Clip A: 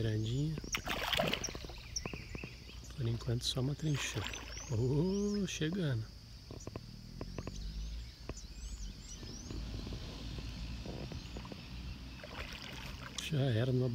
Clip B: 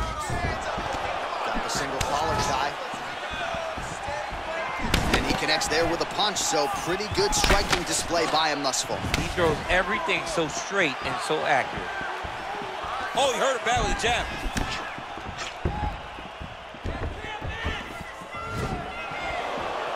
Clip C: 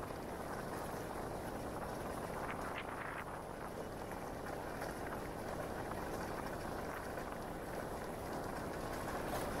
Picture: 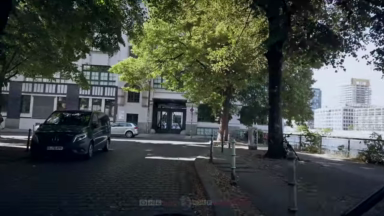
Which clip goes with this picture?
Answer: C